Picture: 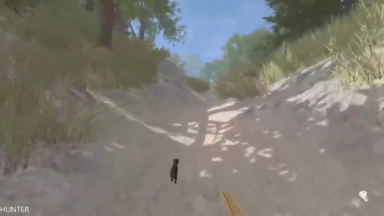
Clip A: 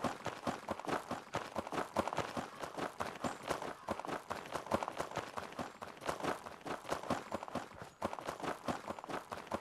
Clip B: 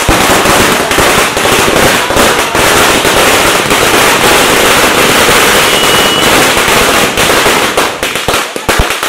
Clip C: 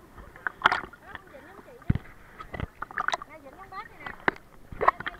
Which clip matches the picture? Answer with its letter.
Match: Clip A